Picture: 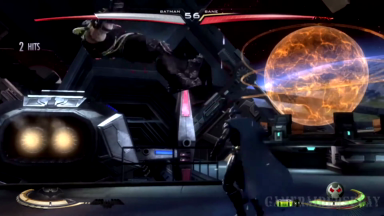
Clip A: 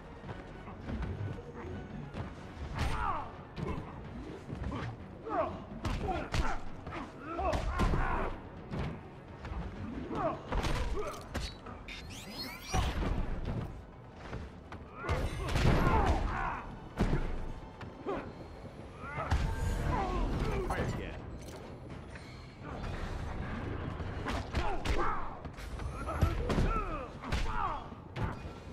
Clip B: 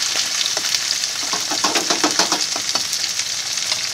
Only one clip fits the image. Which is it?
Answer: A